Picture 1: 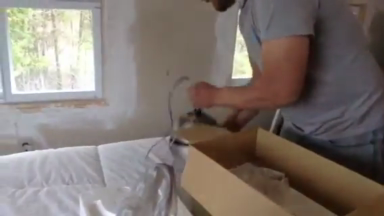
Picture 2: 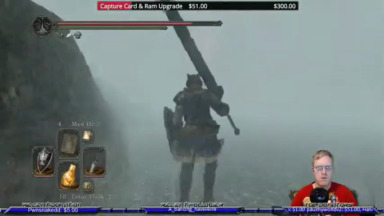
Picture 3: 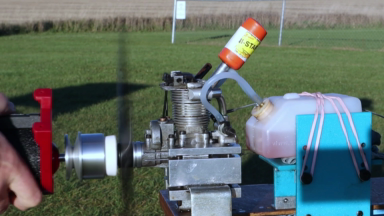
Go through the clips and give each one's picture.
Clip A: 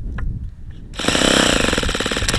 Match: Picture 3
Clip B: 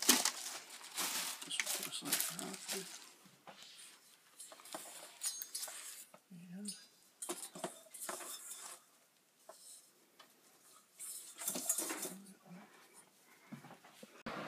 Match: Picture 1